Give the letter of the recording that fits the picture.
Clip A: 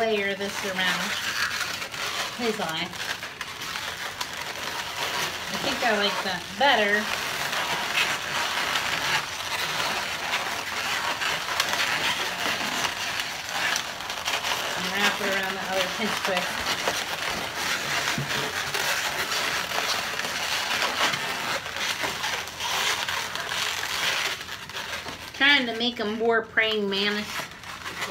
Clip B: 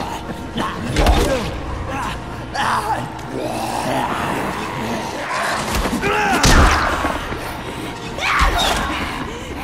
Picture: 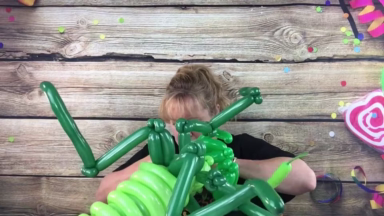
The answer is A